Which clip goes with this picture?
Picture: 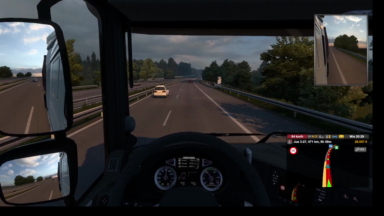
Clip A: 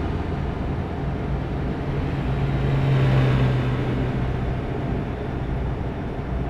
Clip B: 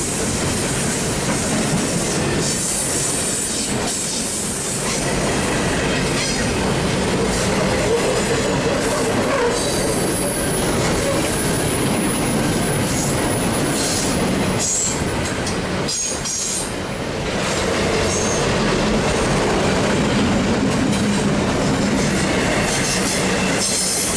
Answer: A